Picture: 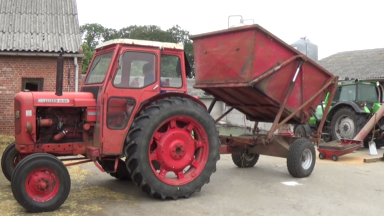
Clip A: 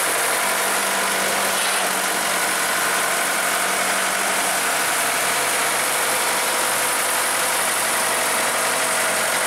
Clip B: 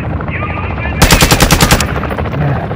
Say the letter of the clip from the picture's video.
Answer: A